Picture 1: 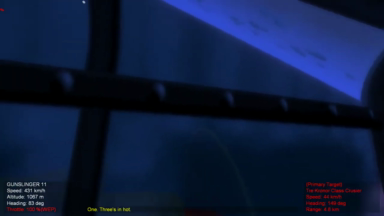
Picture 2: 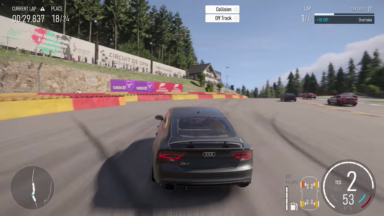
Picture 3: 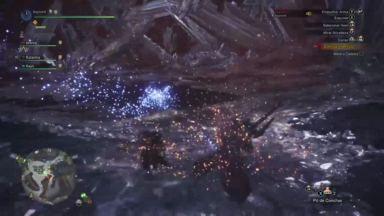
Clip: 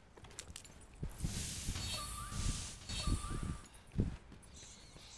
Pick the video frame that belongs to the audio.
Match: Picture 3